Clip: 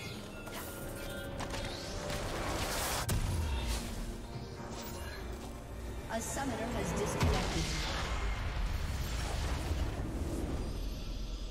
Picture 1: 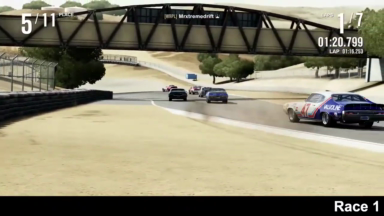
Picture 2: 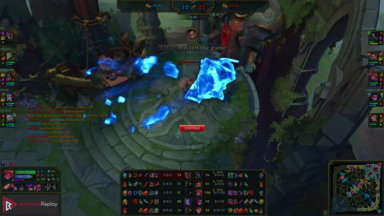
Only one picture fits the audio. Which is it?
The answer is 2